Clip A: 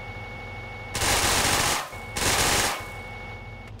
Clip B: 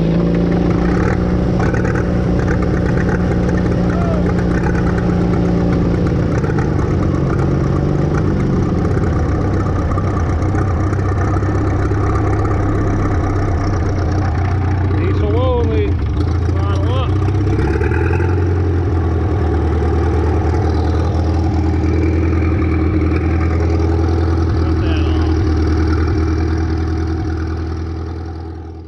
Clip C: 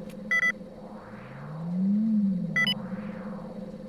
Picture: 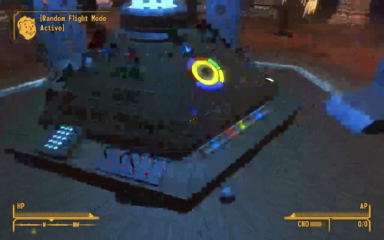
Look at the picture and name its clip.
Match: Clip C